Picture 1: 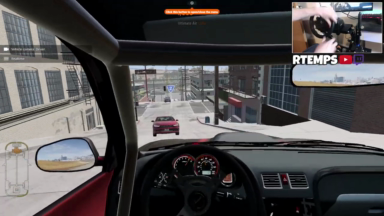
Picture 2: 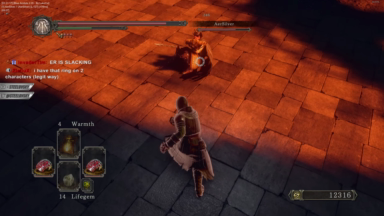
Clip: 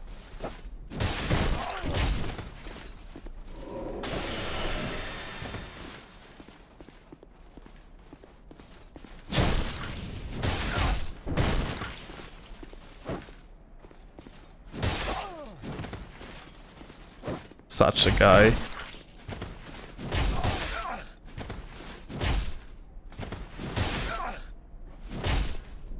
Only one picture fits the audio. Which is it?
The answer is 2